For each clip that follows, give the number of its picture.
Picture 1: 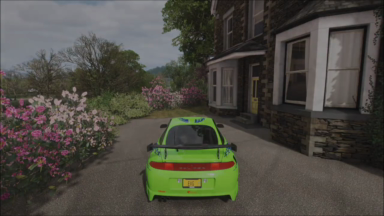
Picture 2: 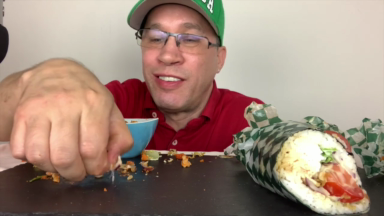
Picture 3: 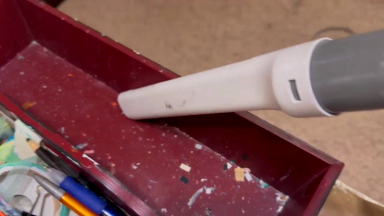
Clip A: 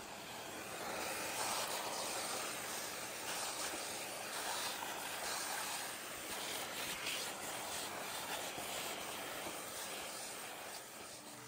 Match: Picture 3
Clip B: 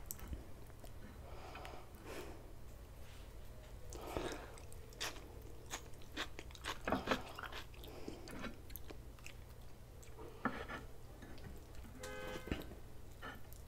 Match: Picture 2